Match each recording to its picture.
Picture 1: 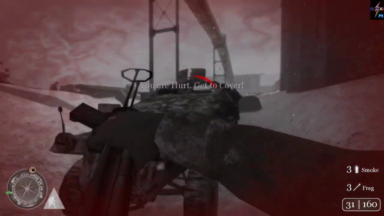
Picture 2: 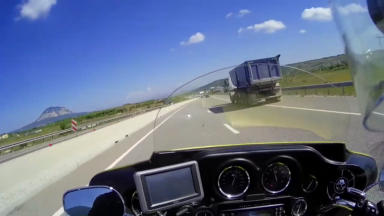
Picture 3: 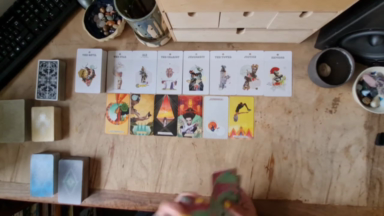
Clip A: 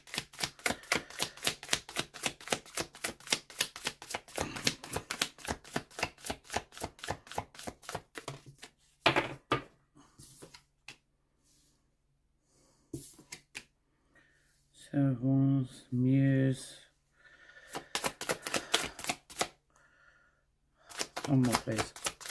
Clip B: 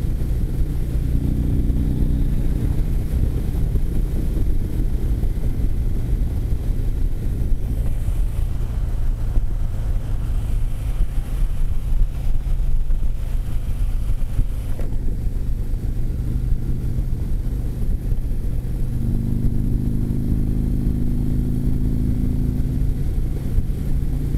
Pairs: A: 3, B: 2